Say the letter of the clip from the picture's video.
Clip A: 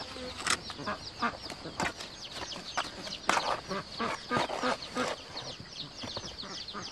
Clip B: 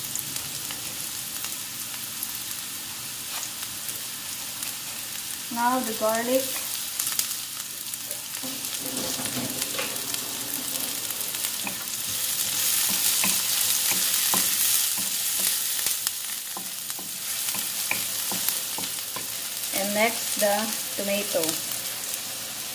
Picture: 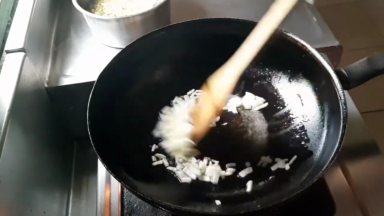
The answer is B